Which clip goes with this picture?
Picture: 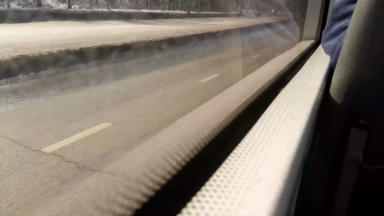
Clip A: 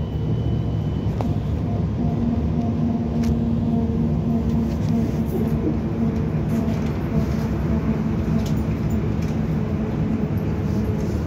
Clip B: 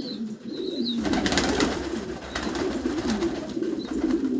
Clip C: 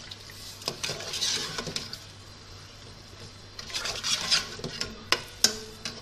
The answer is A